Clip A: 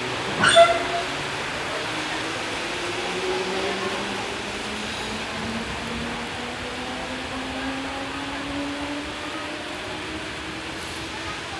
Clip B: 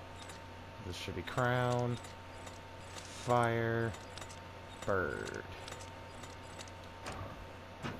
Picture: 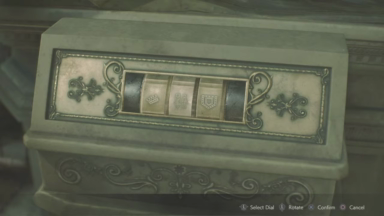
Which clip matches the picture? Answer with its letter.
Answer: B